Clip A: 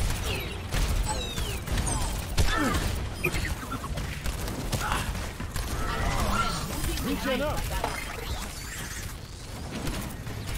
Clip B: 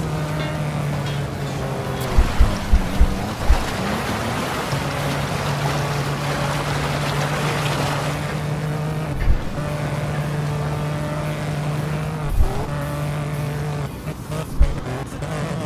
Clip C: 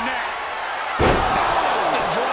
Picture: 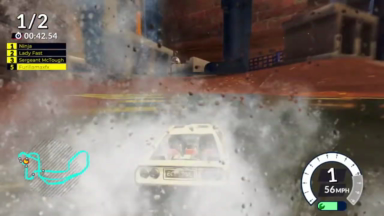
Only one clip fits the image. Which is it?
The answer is B